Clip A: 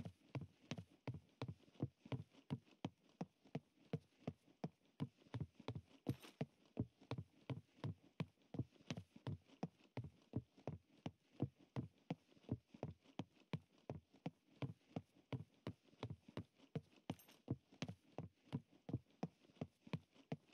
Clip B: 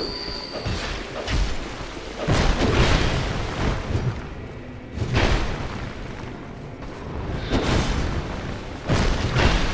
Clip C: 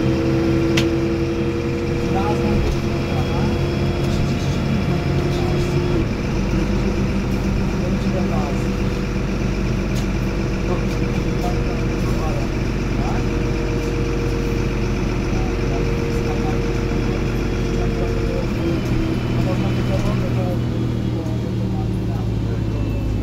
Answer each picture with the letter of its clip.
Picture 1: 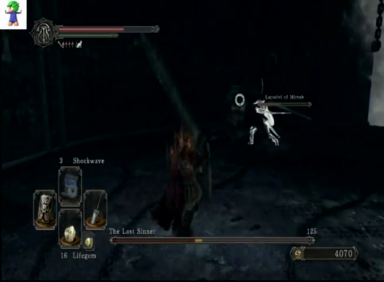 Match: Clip B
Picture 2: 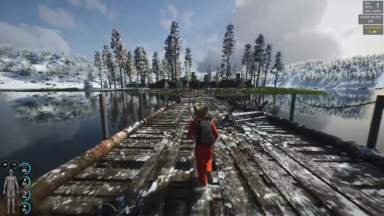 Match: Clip A